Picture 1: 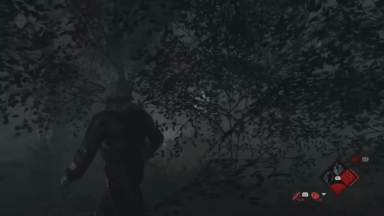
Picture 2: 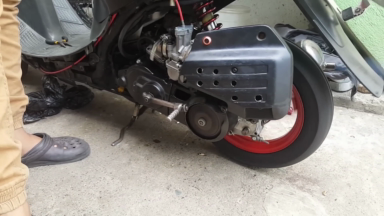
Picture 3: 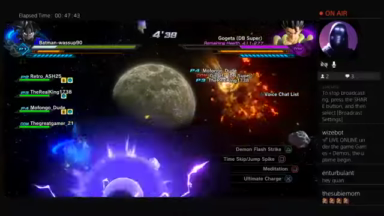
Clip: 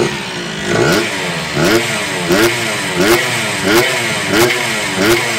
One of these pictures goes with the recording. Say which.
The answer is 2